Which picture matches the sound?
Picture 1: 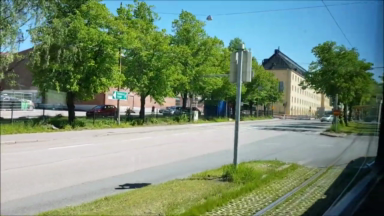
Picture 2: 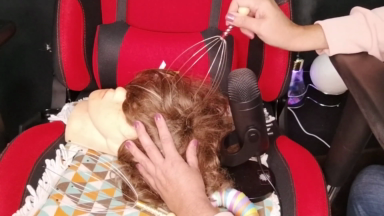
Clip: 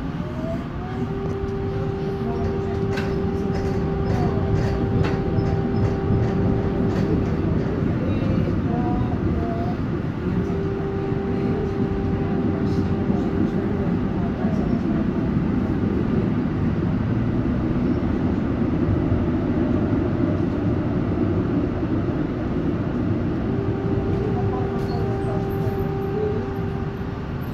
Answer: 1